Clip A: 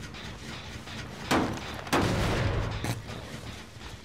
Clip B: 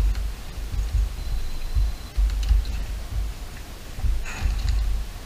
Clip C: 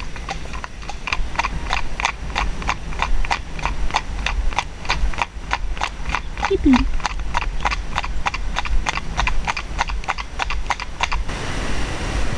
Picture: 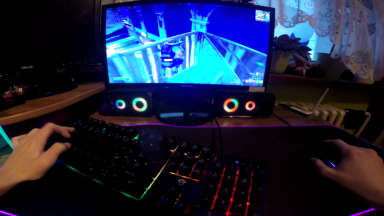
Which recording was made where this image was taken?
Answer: B